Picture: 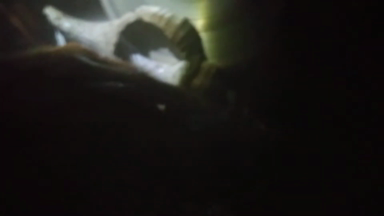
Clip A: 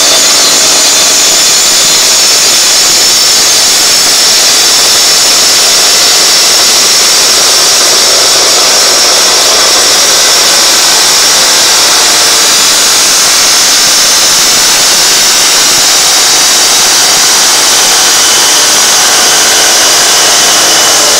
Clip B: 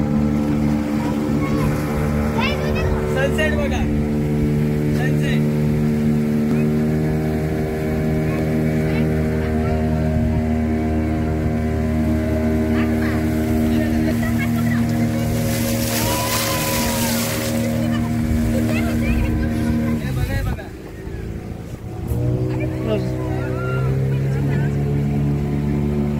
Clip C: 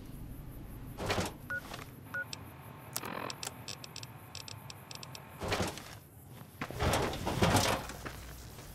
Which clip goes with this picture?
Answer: A